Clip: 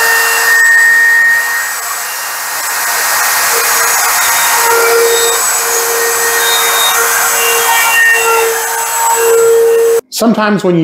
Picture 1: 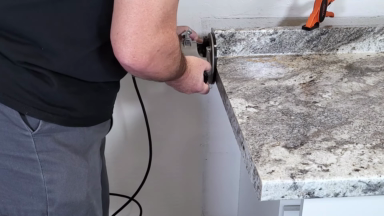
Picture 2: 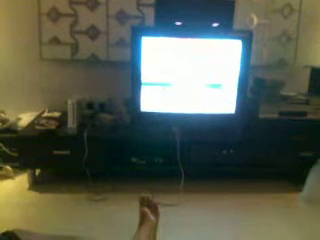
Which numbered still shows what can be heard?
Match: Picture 1